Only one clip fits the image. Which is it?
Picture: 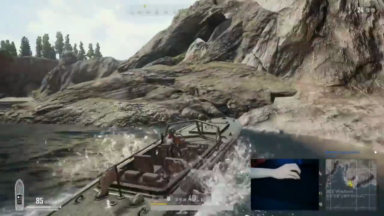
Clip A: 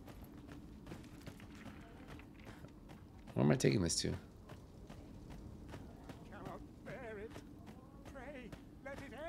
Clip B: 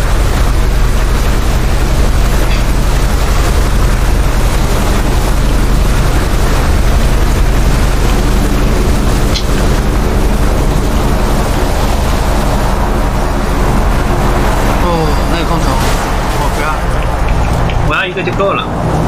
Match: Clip B